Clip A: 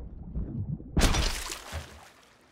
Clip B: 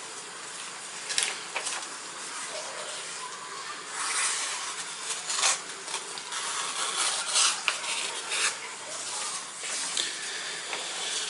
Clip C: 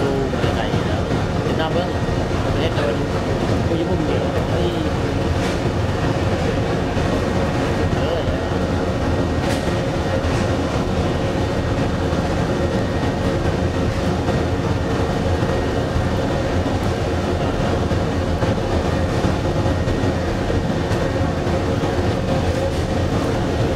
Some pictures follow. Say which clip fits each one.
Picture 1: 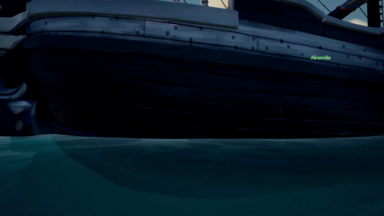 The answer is A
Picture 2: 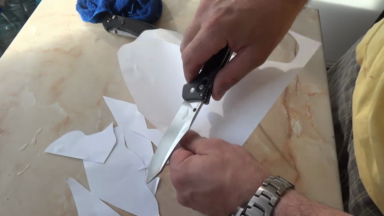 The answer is B